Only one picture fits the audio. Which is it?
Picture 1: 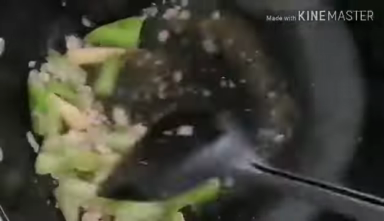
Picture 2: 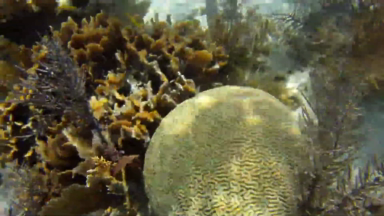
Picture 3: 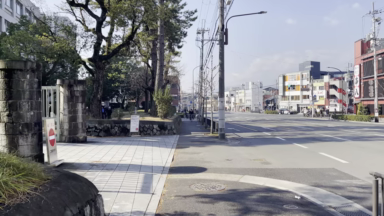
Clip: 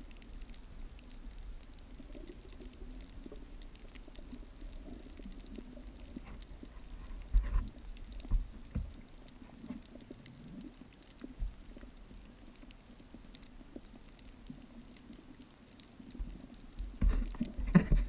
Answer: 2